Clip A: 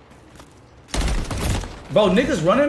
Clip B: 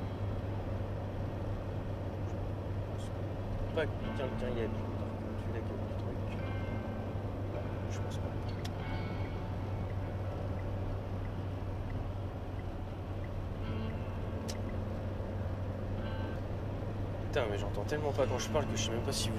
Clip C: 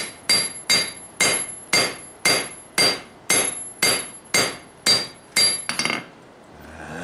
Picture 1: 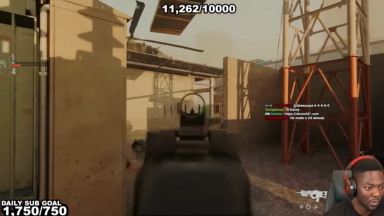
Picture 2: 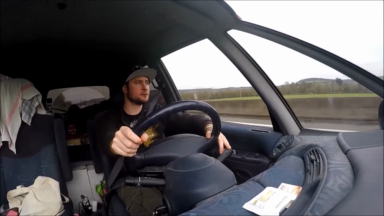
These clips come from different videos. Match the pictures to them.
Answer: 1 A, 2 B